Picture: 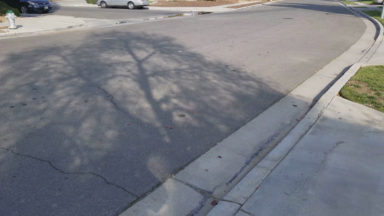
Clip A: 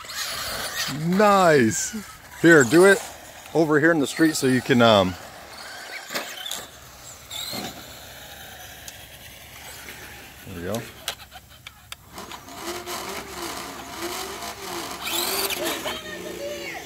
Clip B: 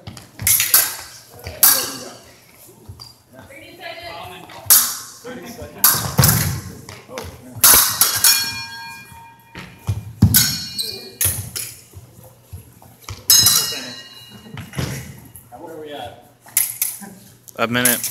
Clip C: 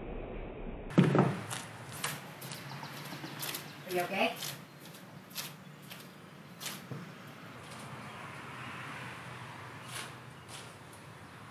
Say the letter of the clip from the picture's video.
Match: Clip A